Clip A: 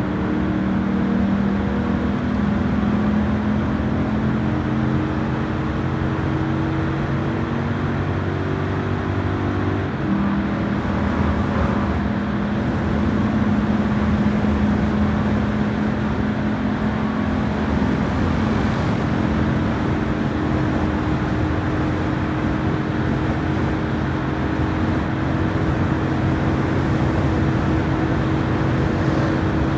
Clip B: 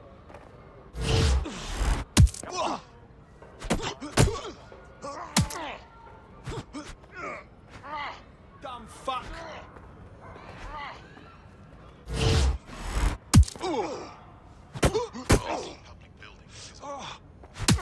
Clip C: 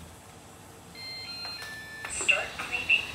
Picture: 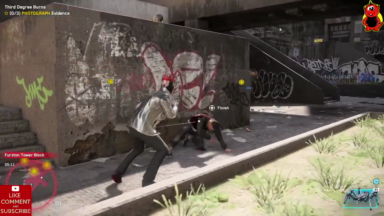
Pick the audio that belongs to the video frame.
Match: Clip B